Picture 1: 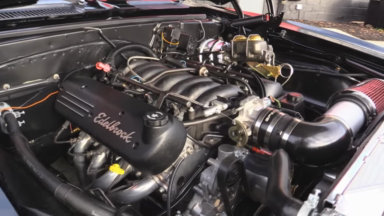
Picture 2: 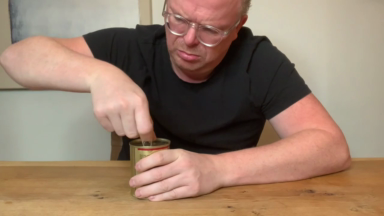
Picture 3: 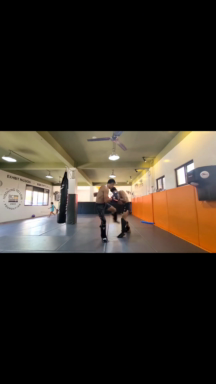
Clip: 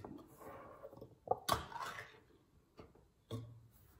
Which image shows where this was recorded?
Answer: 2